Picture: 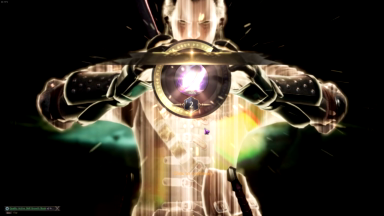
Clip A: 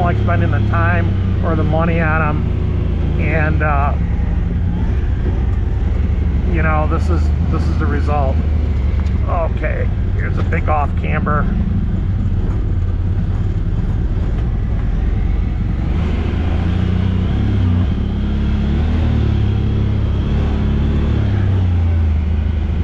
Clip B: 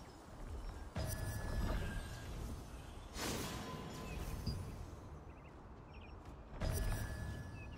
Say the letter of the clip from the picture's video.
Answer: B